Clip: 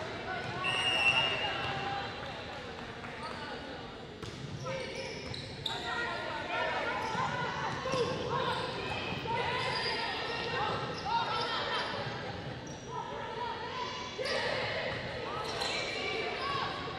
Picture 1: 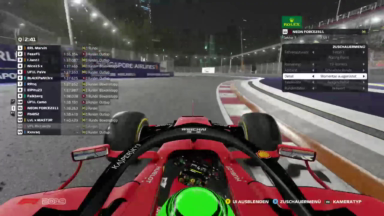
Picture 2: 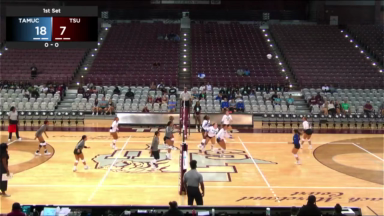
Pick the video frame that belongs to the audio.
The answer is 2